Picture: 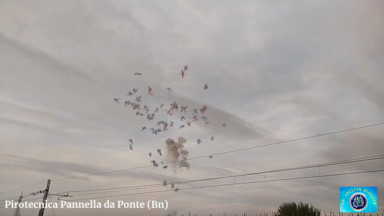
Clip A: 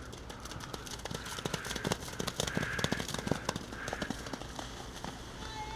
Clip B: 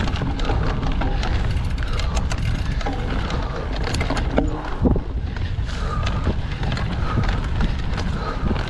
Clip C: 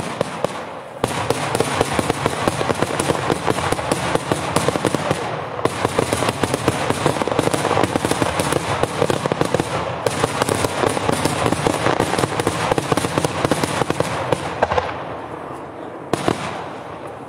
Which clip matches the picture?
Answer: C